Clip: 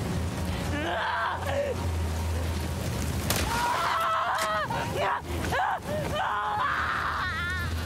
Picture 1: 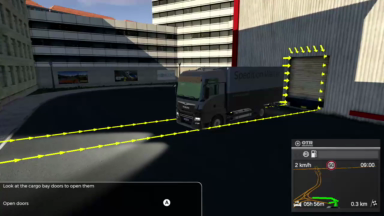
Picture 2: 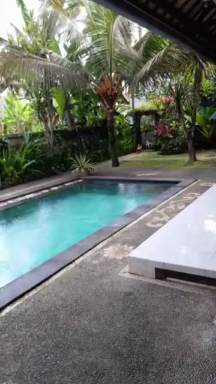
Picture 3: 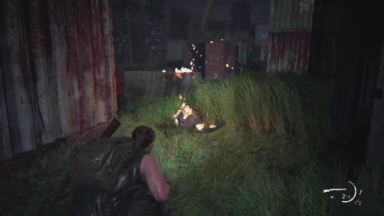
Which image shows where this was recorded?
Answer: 3